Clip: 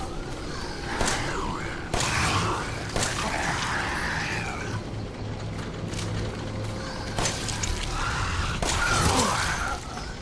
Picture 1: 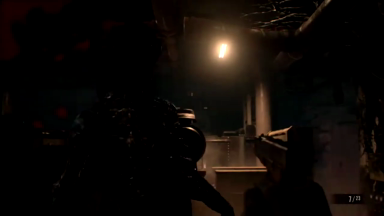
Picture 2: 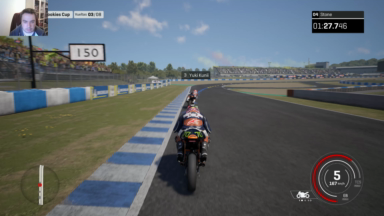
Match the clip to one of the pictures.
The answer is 1